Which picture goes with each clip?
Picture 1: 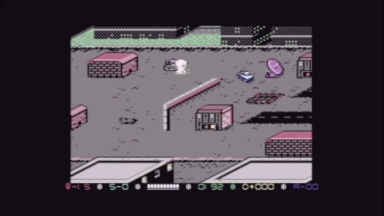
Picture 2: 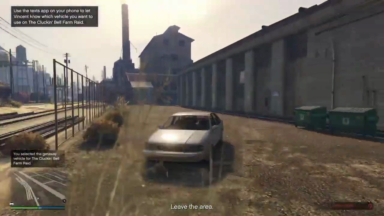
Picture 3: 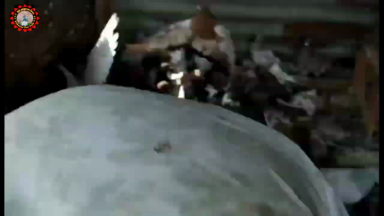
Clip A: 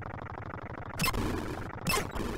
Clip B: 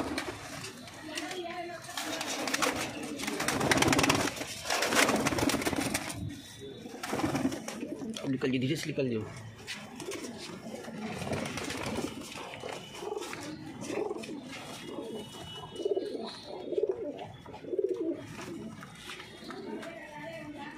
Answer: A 1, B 3